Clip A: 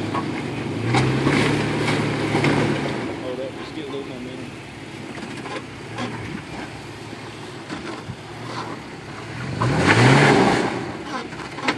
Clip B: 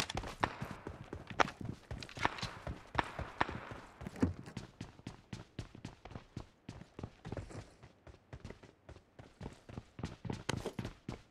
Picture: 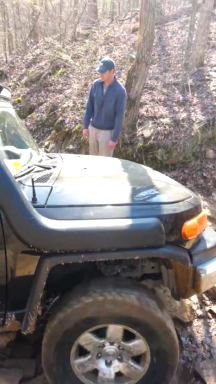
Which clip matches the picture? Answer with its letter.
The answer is A